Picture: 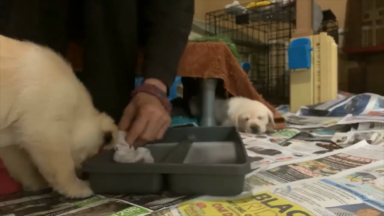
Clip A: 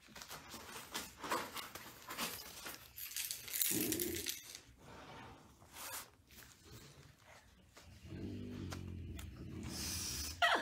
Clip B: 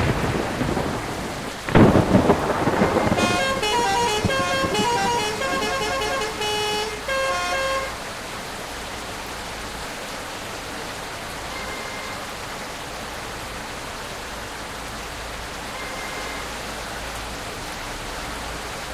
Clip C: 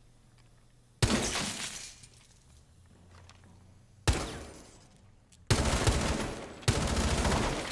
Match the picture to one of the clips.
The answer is A